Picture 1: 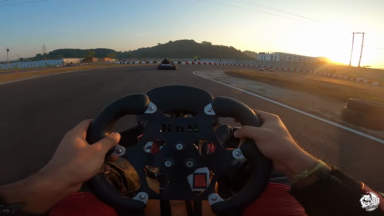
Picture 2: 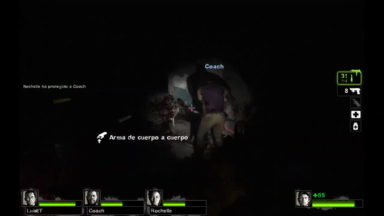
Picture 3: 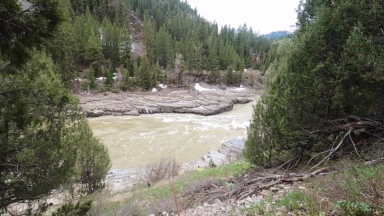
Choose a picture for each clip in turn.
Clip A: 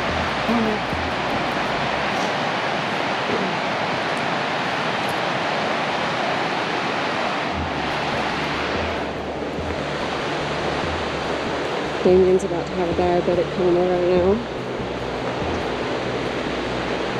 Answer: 3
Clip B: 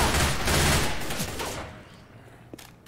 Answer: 2